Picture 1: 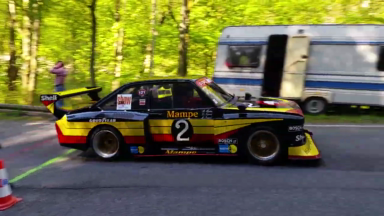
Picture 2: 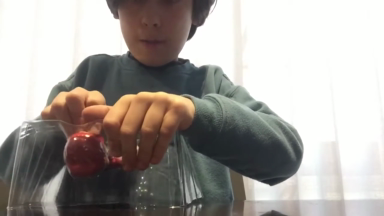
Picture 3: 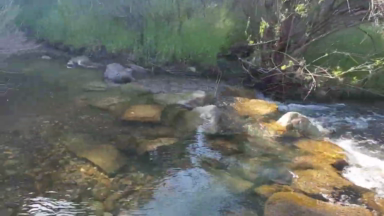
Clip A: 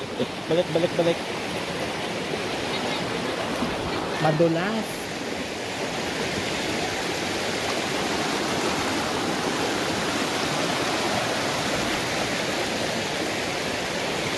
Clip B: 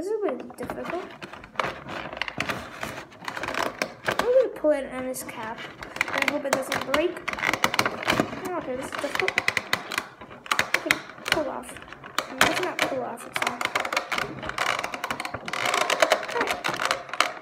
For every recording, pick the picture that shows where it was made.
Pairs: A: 3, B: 2